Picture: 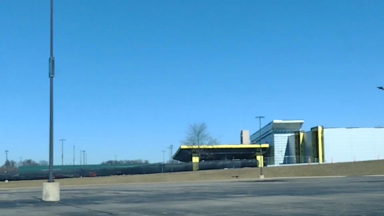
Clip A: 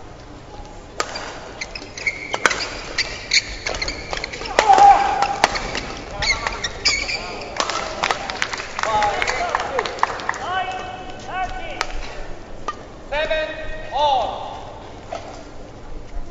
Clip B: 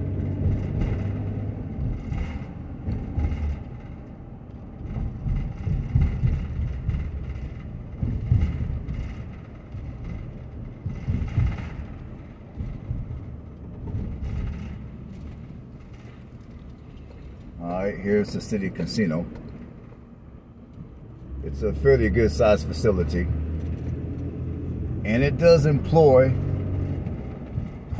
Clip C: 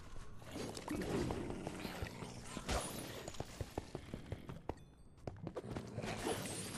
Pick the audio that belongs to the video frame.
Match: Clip B